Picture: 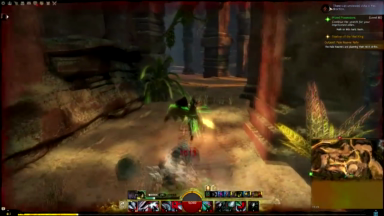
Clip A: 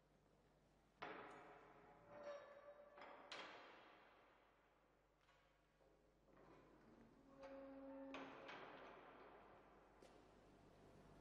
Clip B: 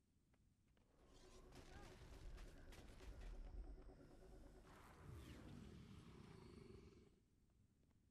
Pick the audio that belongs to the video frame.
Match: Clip B